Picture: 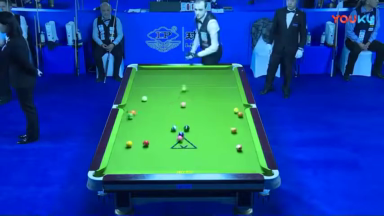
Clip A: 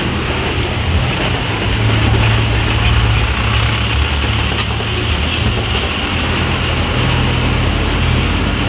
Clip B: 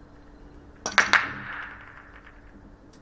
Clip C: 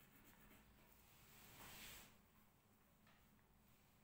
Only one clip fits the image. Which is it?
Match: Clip B